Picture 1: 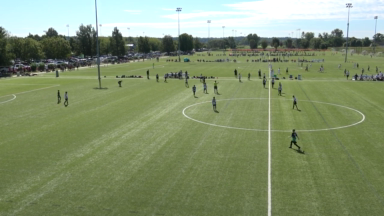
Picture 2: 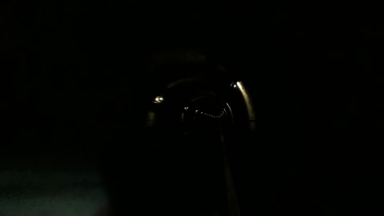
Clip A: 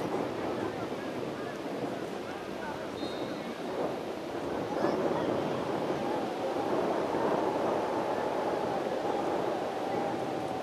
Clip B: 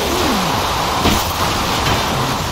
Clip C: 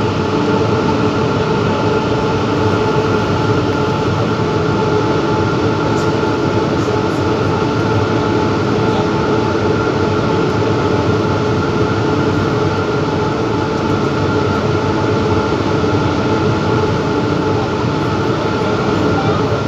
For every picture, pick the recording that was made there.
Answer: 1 A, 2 C